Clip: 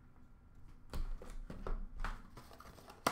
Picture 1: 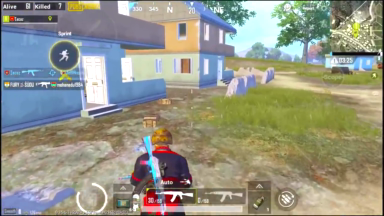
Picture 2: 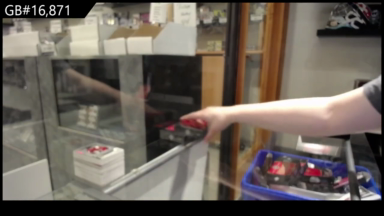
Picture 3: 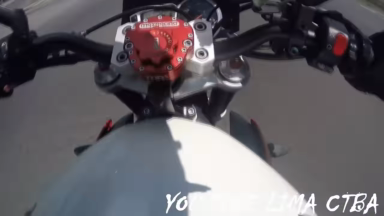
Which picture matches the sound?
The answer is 2